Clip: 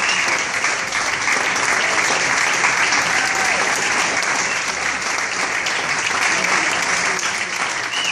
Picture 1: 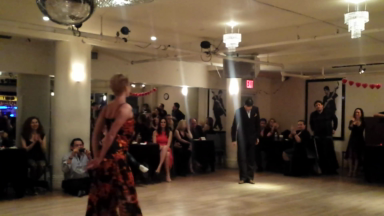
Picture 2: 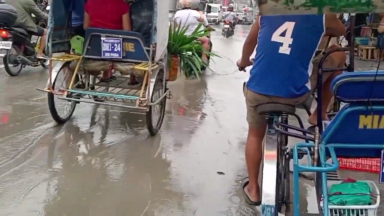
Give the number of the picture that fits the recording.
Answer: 1